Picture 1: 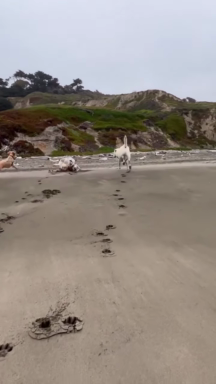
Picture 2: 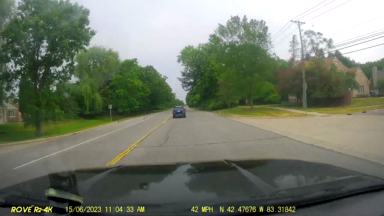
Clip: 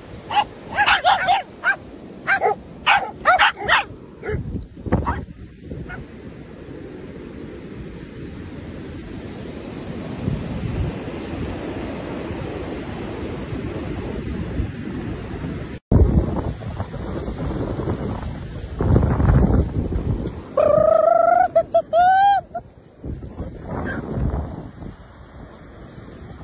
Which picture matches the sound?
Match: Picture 1